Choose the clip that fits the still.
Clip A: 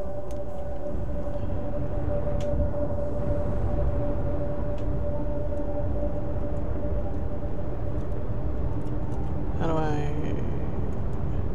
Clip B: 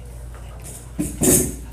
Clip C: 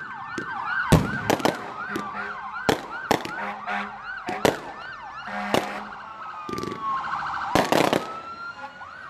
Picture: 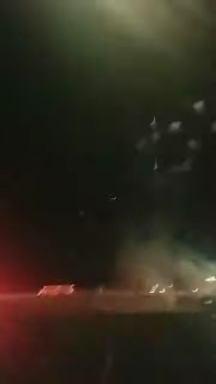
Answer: C